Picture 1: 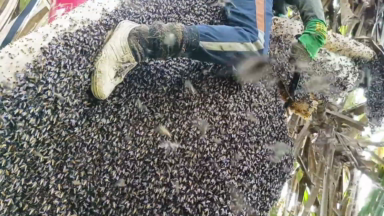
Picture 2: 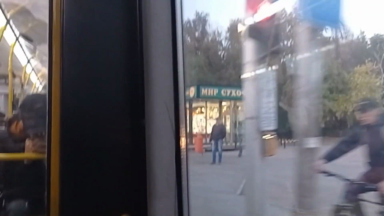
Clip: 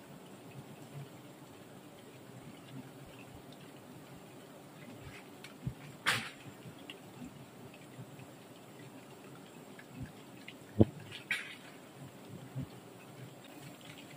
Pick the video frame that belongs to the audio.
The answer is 1